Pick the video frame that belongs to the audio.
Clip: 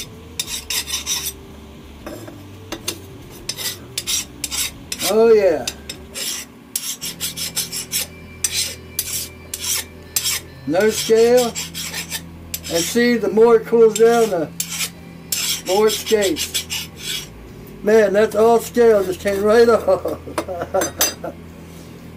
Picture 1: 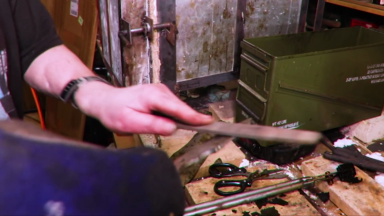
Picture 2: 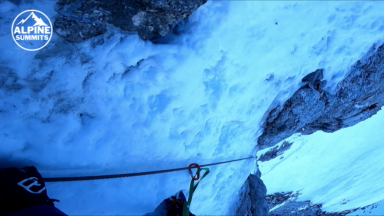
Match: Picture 1